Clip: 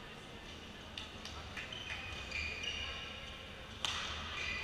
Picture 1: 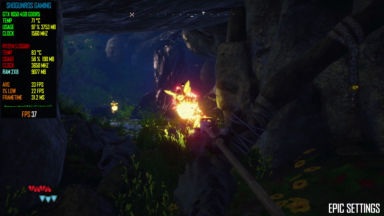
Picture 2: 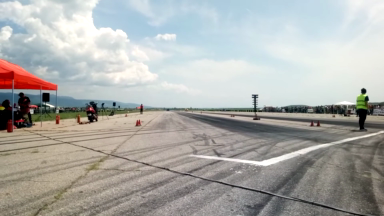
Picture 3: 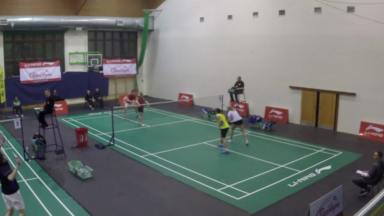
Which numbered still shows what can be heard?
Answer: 3